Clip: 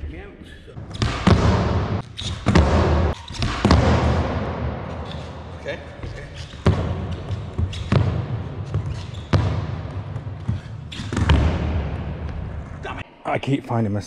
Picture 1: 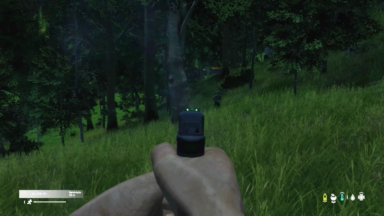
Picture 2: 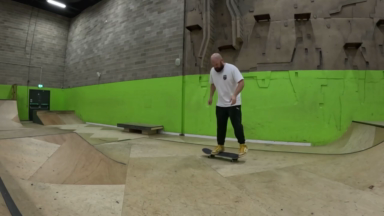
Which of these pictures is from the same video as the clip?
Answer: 2